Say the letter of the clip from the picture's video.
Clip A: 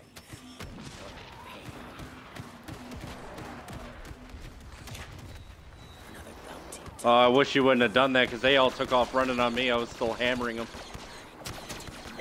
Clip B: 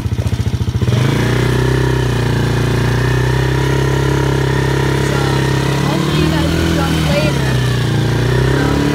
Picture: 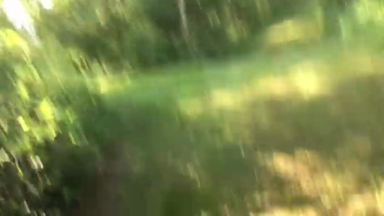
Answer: B